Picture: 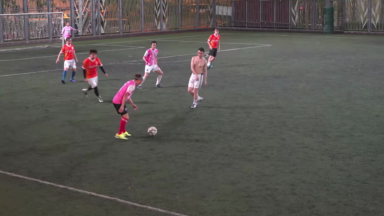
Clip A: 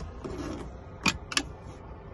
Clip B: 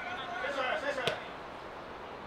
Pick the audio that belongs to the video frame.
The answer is B